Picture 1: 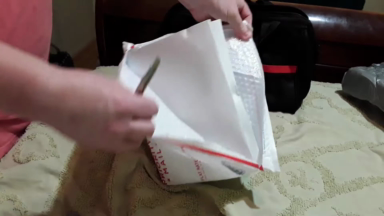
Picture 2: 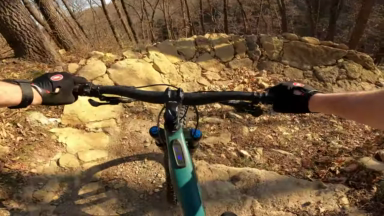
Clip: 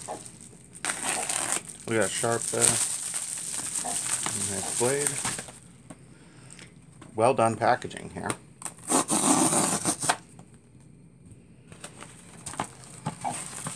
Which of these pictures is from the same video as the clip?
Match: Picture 1